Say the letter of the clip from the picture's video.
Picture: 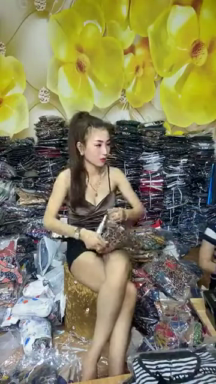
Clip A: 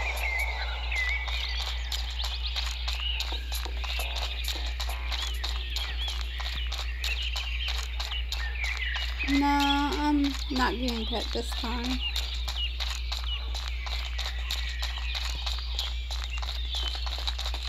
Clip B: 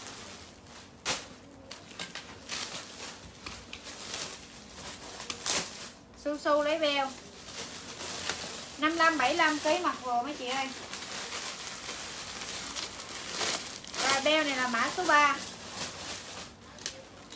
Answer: B